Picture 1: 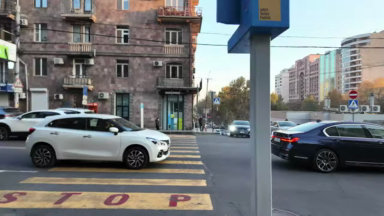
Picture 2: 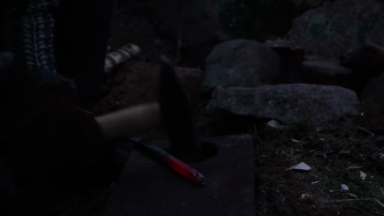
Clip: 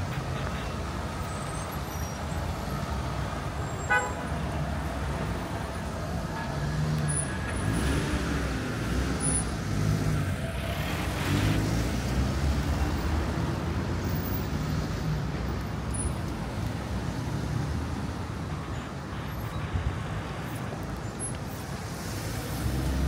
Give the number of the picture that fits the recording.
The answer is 1